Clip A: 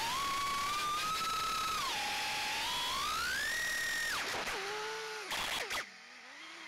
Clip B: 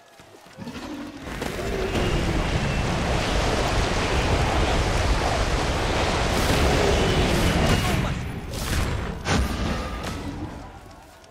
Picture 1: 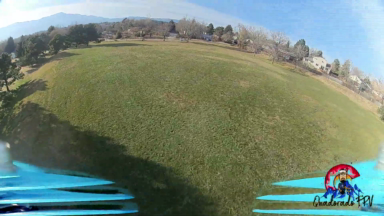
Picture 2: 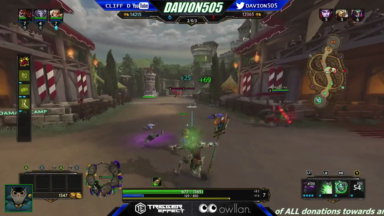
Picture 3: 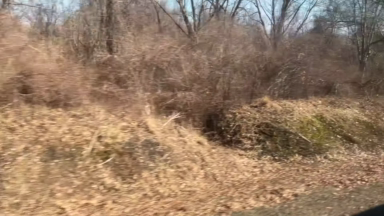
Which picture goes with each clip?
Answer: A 1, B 2